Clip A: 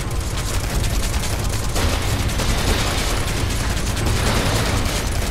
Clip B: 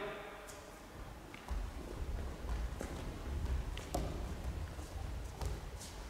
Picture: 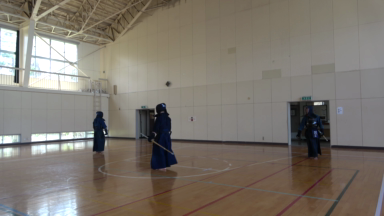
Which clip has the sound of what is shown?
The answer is B